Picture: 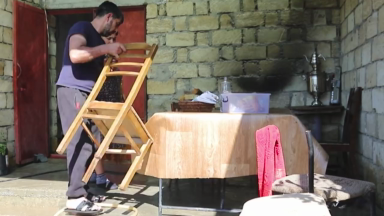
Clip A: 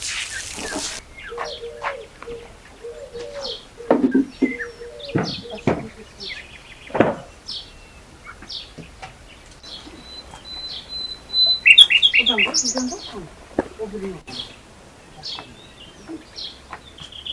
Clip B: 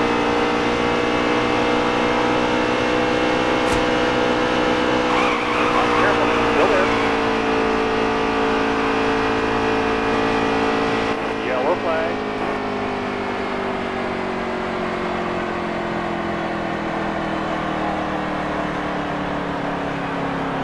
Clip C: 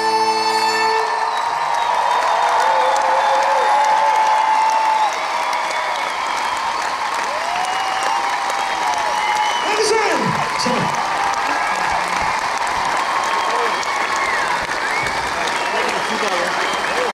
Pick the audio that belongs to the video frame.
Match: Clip A